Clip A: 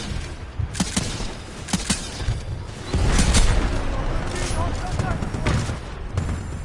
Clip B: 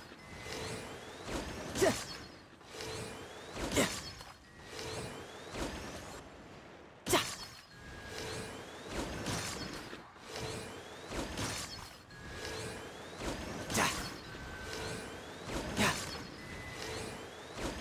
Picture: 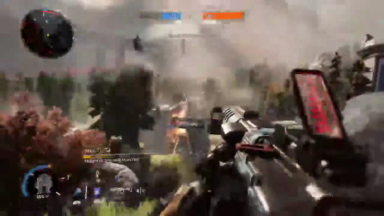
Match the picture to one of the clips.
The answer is A